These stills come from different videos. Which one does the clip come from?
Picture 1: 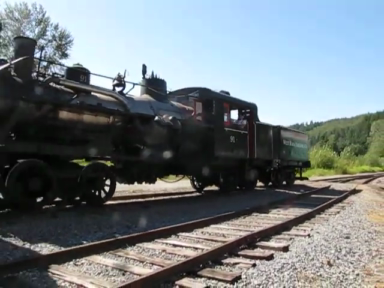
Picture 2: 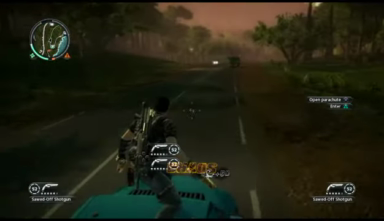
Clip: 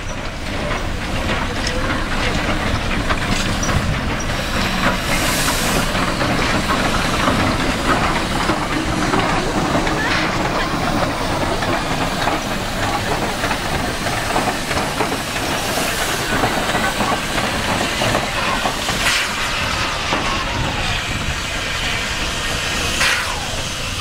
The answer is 1